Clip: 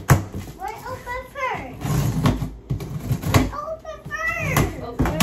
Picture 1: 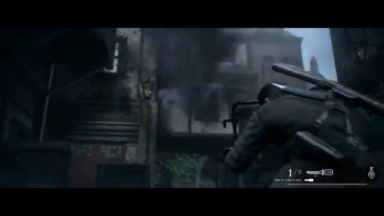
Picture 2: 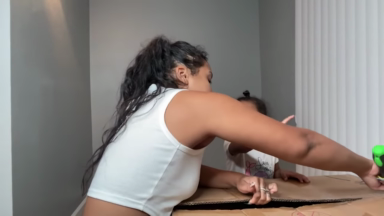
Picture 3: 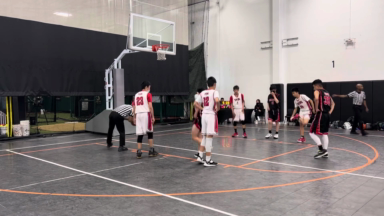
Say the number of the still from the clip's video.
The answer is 2